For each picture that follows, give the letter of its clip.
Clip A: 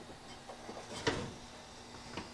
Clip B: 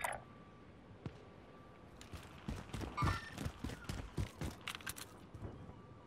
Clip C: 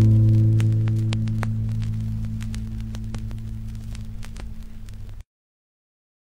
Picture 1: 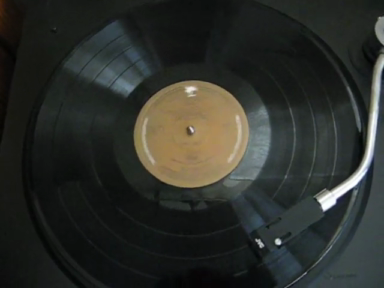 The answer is C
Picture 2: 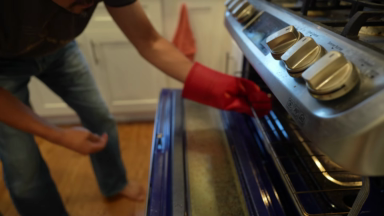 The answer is A